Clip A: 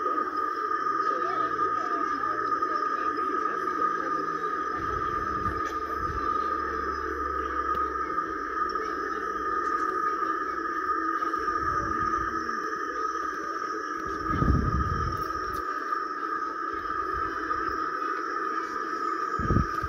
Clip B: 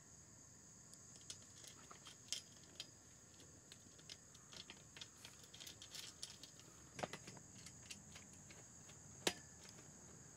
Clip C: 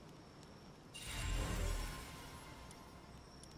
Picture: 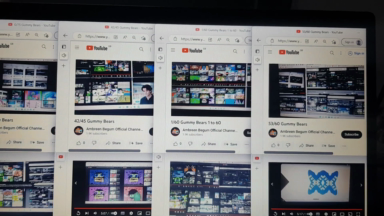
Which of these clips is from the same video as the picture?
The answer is A